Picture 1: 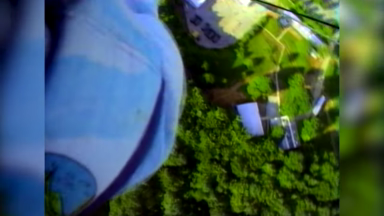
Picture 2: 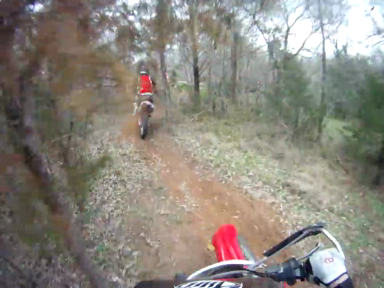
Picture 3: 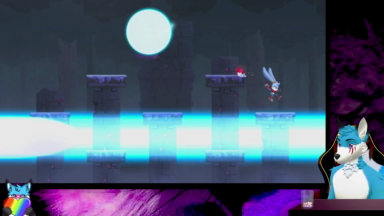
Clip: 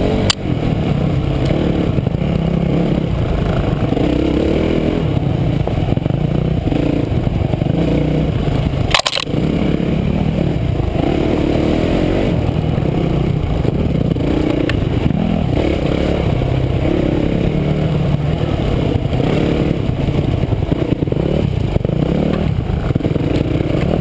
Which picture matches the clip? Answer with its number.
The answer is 2